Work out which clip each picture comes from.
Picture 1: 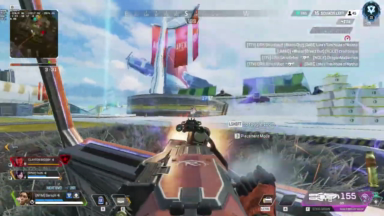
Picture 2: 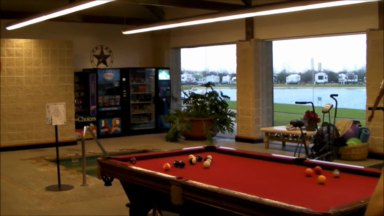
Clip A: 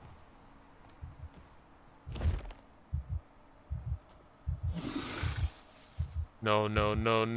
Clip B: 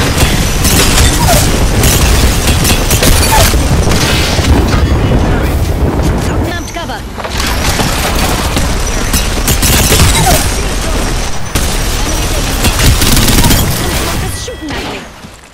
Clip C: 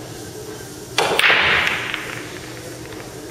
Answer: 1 B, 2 C